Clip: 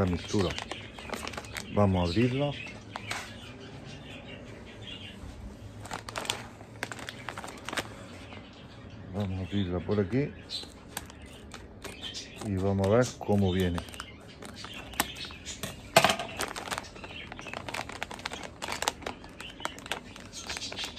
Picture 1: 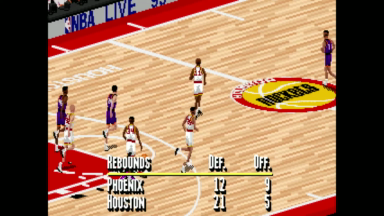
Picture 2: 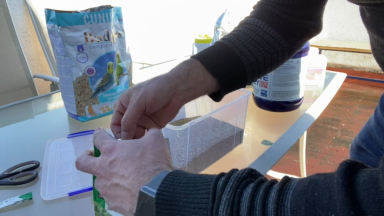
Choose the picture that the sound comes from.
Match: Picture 2